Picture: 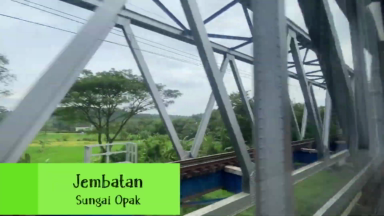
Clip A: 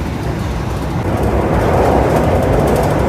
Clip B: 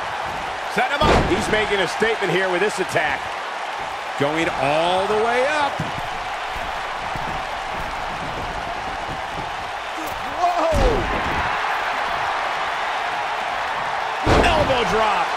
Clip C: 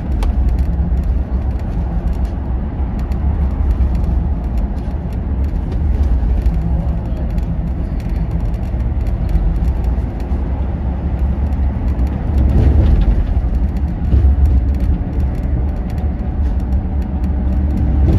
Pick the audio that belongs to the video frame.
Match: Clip A